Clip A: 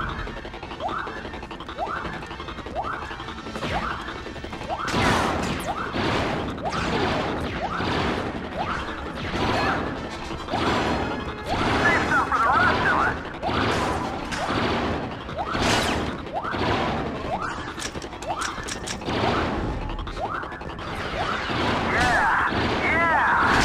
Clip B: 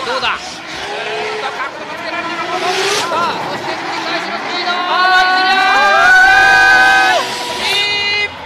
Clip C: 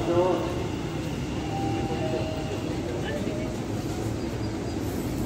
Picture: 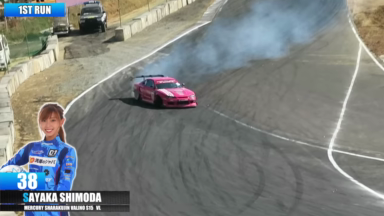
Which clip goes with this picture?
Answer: B